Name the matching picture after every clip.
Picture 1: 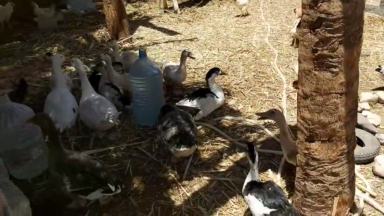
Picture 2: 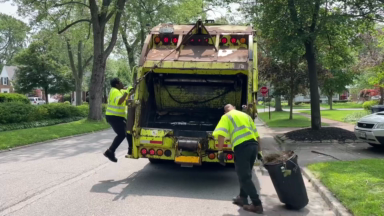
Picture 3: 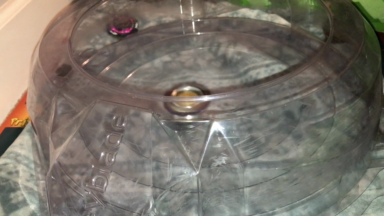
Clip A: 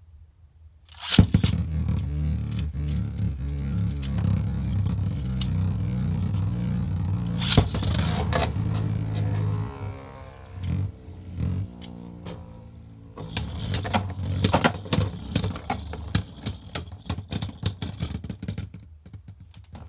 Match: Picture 3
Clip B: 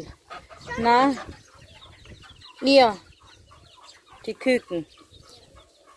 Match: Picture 1